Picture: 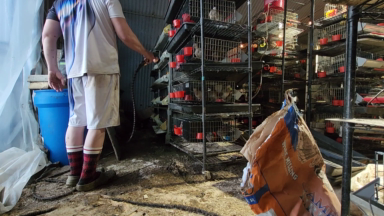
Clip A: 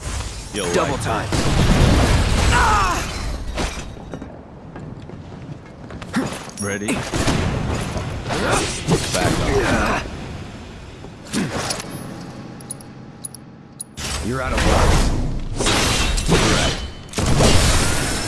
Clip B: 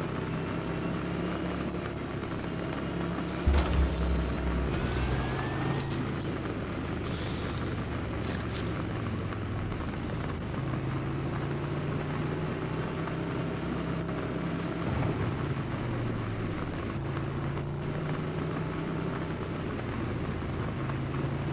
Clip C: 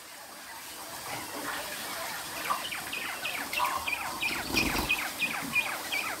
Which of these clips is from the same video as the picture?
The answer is C